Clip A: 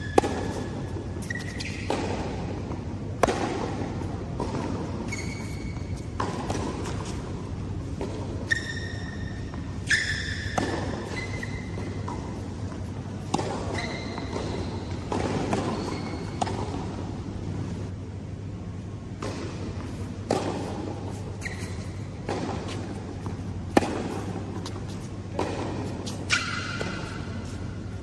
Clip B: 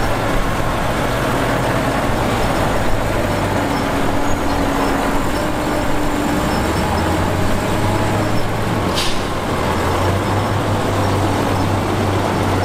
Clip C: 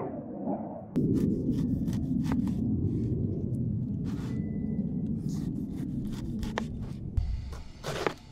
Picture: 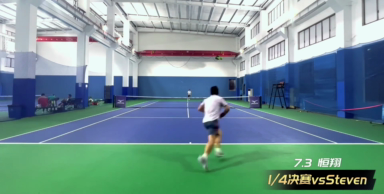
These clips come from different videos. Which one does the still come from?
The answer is A